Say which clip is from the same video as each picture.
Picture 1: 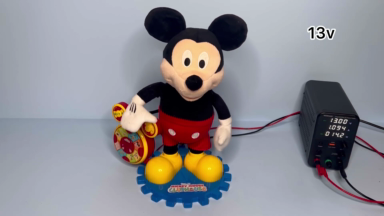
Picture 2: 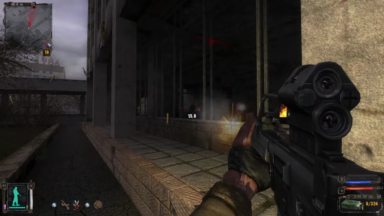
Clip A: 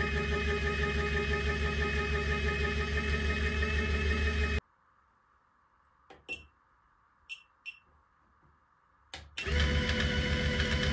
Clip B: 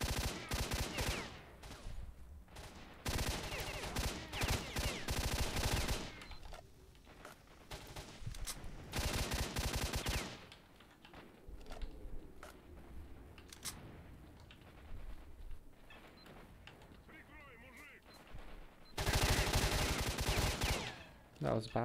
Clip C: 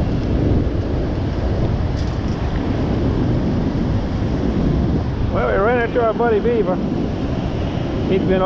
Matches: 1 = A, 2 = B